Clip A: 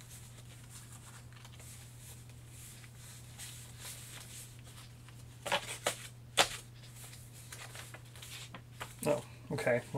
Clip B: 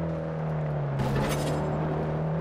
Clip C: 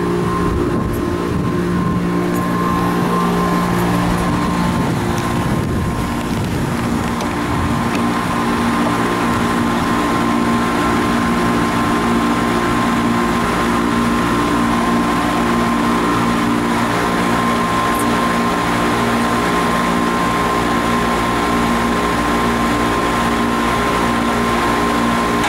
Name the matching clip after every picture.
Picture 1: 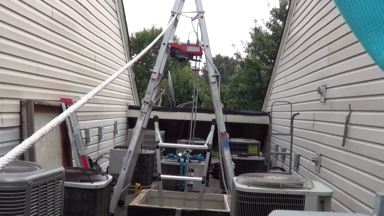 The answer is C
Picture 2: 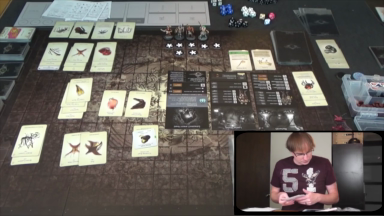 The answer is A